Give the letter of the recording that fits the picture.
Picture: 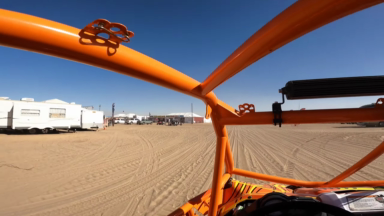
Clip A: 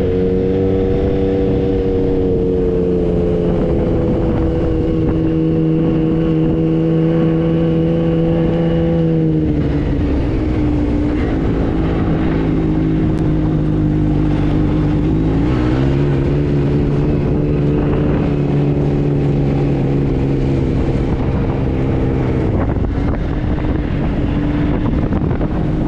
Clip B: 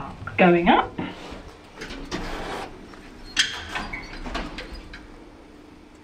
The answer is A